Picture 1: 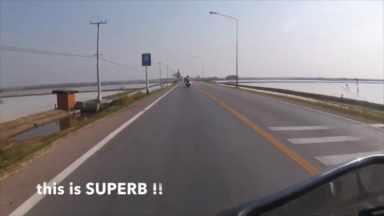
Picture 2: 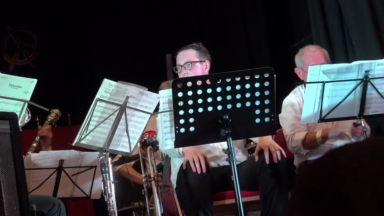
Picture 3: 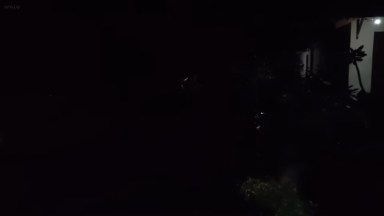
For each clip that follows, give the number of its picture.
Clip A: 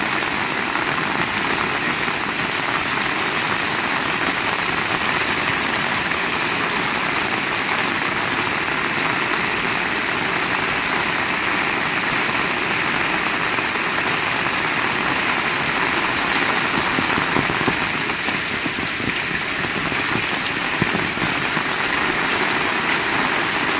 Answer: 3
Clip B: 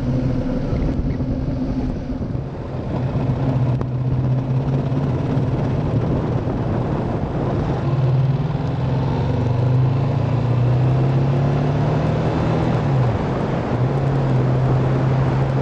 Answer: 1